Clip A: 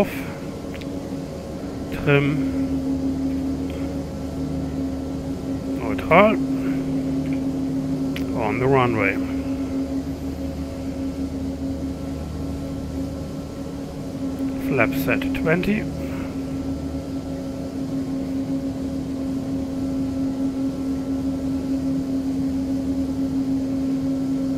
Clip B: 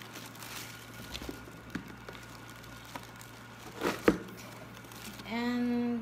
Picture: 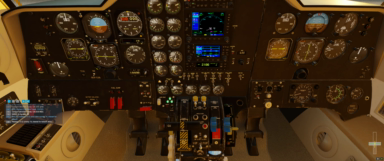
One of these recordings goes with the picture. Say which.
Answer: A